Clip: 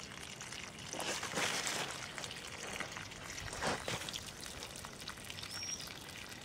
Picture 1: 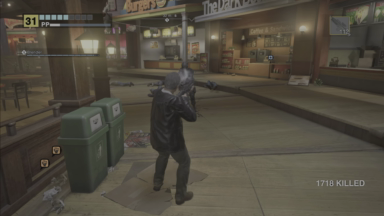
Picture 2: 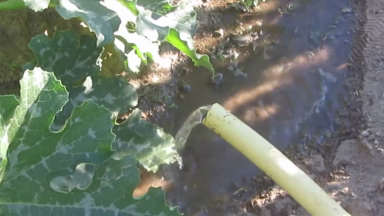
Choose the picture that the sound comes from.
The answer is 2